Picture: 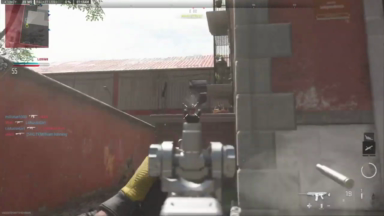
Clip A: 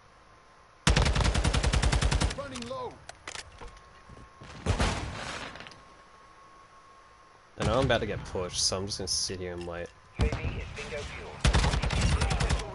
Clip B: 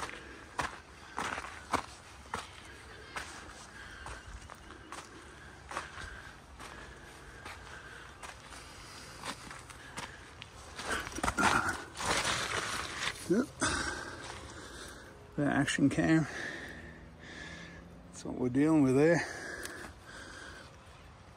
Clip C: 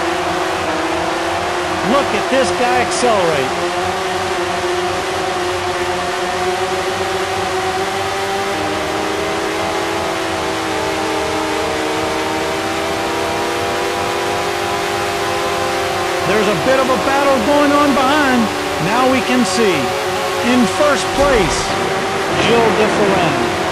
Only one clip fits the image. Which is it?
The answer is A